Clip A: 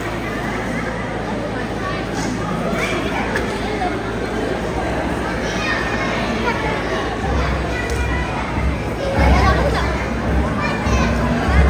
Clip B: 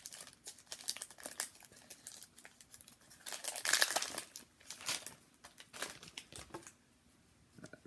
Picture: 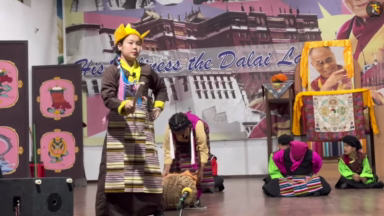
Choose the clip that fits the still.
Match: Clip A